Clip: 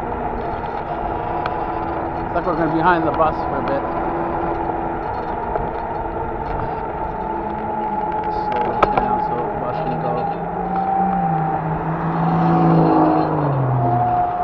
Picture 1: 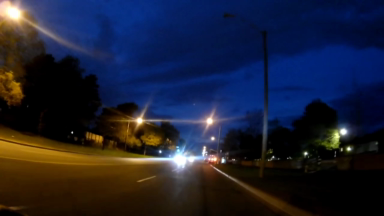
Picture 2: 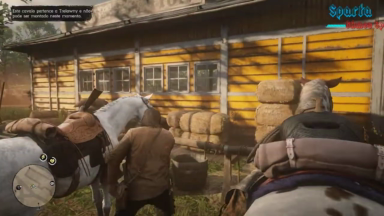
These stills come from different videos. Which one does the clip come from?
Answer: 1